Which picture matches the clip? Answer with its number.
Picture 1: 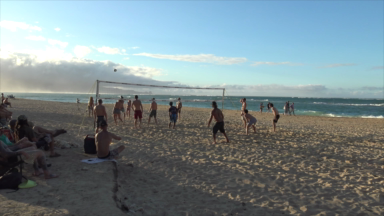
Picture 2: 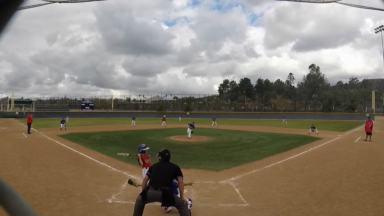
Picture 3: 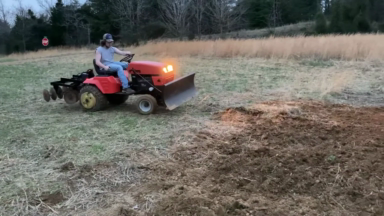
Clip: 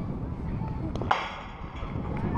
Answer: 2